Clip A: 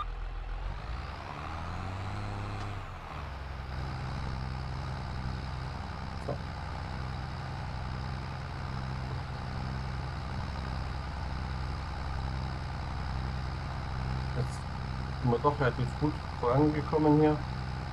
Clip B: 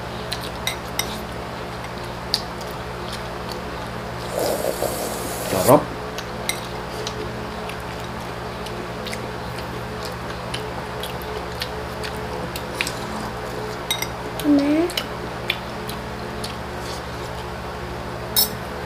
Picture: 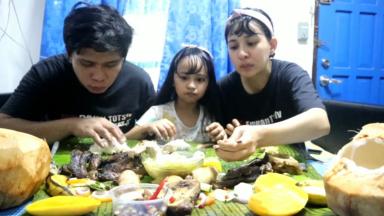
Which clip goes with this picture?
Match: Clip B